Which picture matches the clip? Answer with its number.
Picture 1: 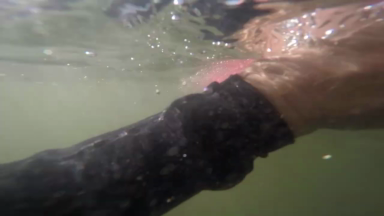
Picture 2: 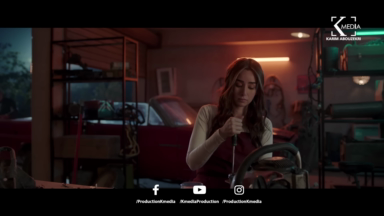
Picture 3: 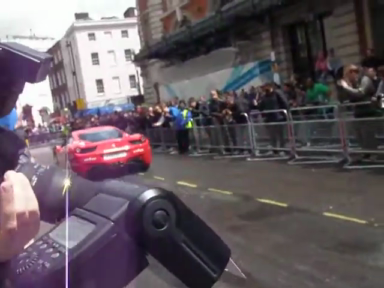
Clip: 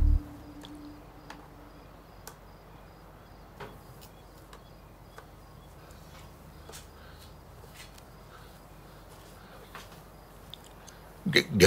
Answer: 2